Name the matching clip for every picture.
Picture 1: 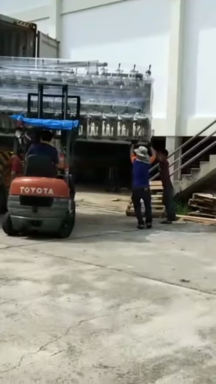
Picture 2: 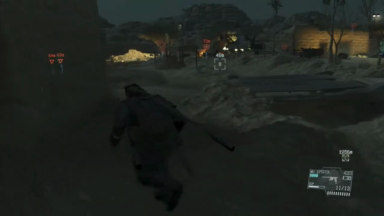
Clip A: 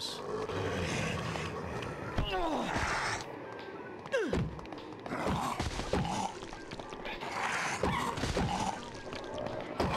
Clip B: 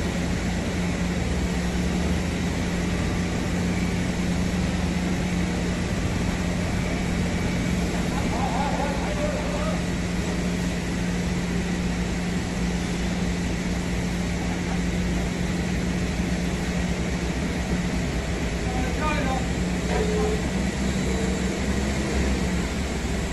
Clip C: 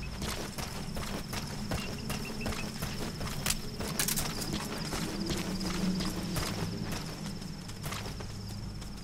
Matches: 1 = B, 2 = C